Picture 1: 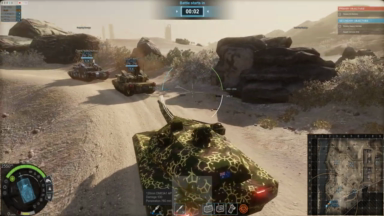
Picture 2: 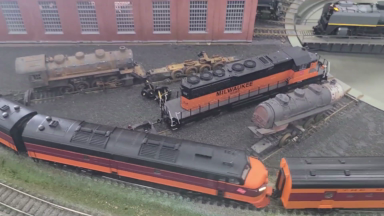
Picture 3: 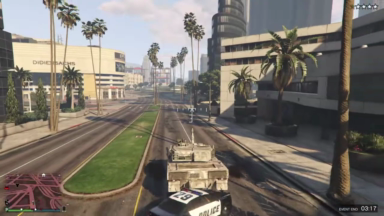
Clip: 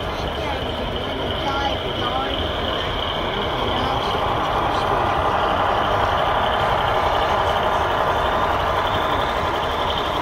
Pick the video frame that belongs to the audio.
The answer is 2